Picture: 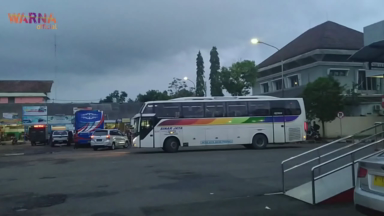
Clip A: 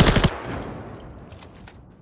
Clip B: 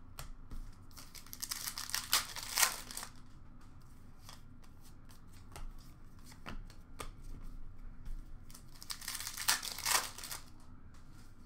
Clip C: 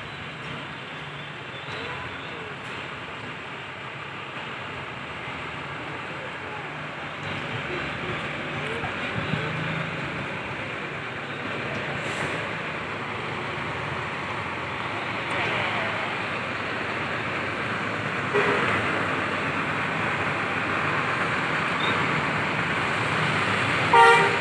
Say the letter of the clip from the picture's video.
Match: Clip C